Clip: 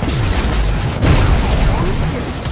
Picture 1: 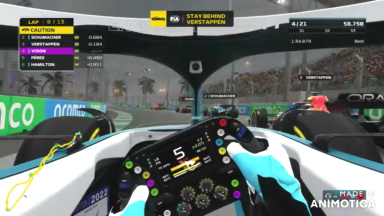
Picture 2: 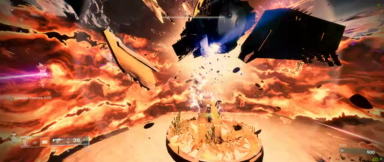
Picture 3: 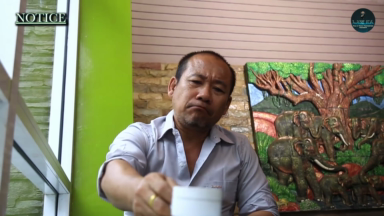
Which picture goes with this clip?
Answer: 2